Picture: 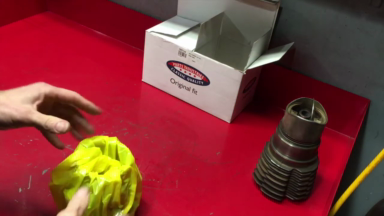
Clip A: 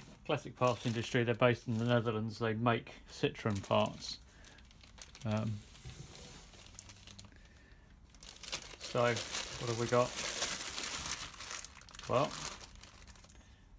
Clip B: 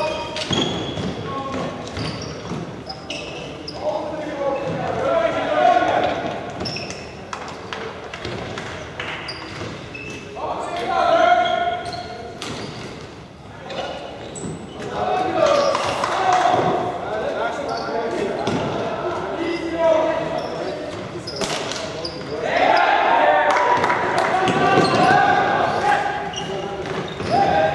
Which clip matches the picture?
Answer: A